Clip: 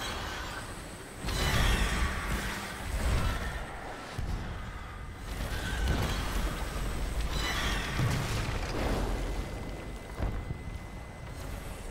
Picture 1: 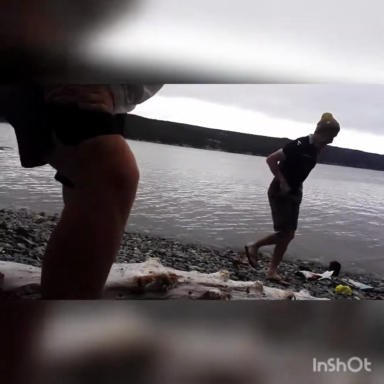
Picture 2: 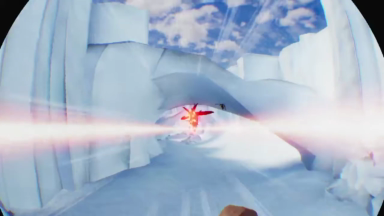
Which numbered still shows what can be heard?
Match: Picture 2